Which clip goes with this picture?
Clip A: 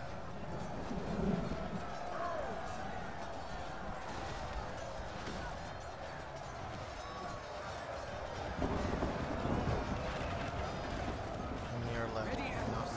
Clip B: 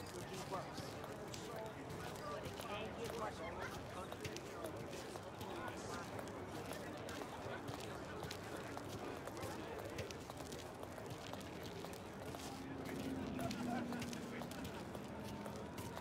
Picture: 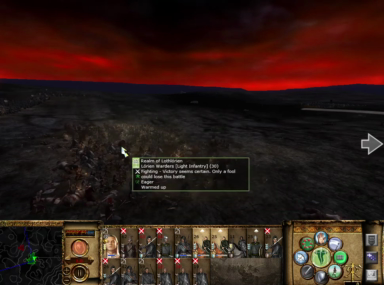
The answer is A